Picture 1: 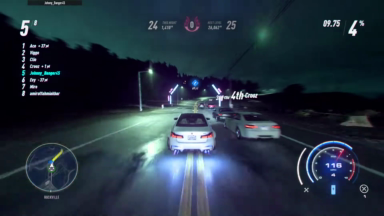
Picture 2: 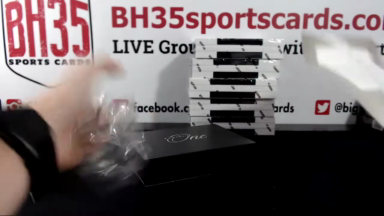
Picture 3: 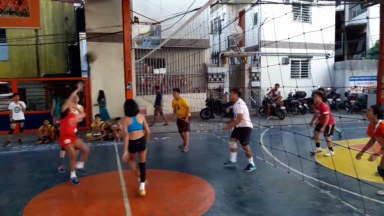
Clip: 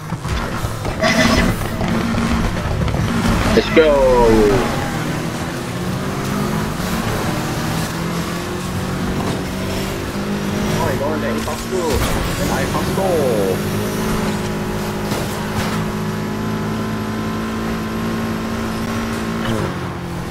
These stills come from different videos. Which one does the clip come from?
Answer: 1